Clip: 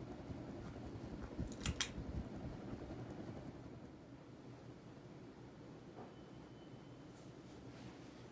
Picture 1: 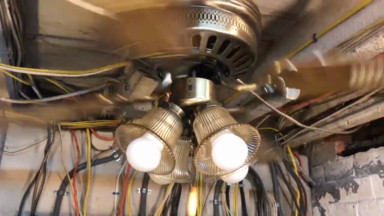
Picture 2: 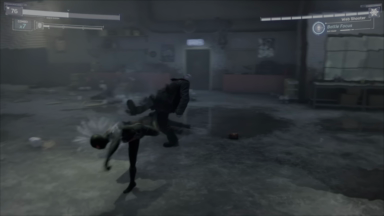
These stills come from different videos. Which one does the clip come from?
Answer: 1